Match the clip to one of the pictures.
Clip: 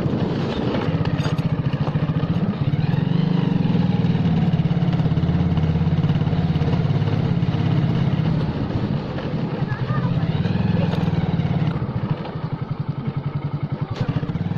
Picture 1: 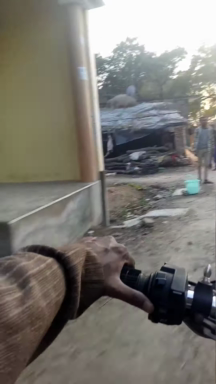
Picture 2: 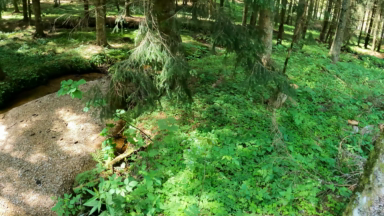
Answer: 1